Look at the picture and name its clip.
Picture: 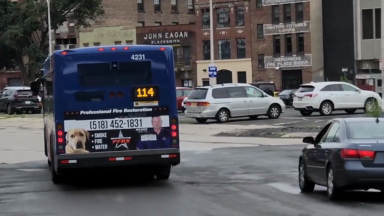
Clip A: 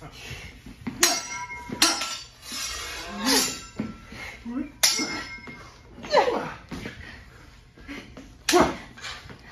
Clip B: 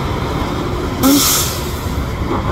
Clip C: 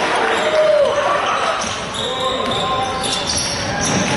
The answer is B